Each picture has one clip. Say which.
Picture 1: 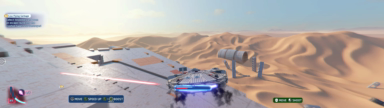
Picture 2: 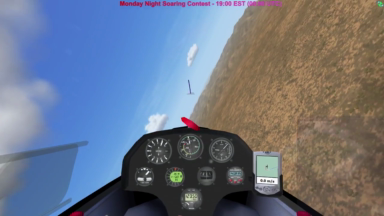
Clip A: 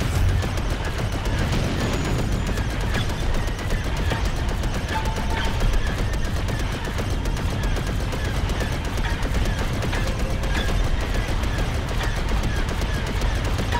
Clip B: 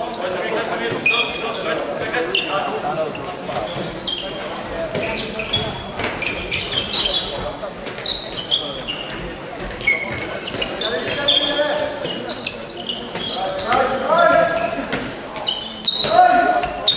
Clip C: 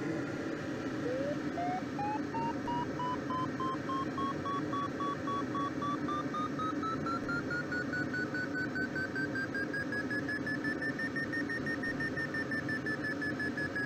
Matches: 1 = A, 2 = C